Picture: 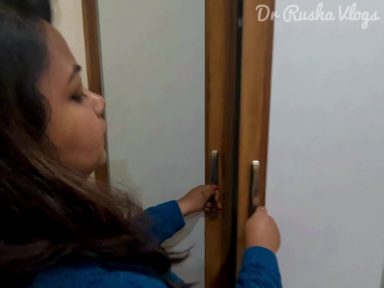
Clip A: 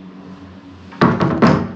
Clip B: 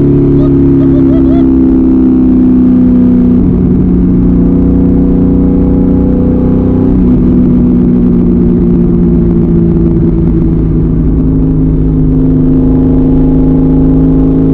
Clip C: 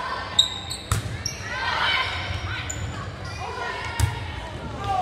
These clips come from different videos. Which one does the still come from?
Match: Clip A